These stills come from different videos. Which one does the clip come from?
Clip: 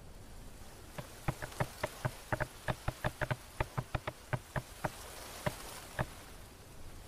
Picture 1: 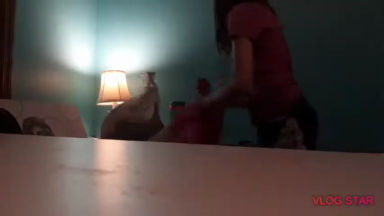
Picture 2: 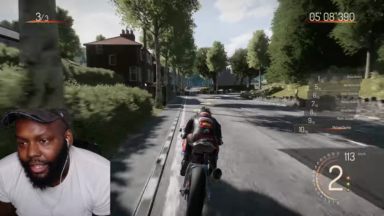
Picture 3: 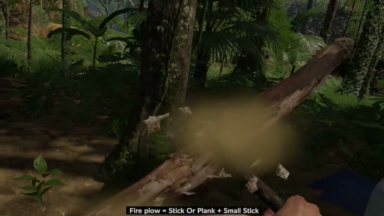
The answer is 3